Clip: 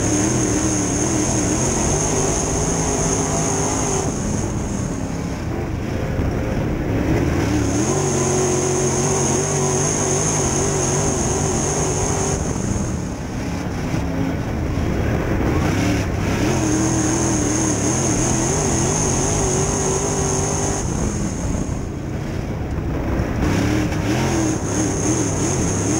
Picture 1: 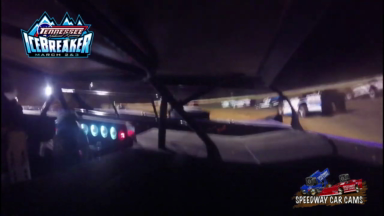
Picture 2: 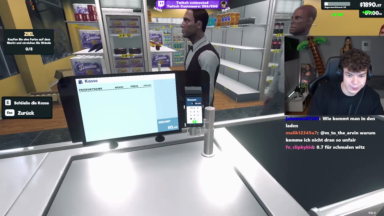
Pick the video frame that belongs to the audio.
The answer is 1